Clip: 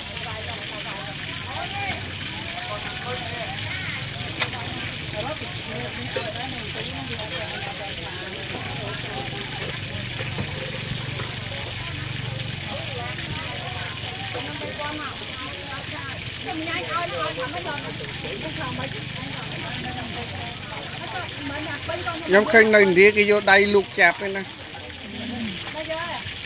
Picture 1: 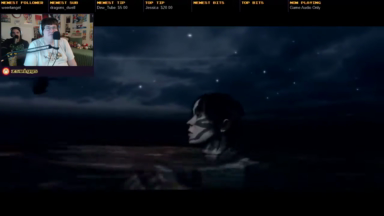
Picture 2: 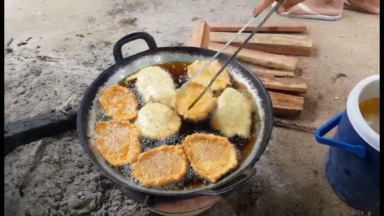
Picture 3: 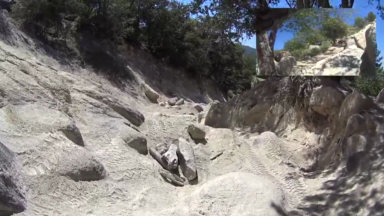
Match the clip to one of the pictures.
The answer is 2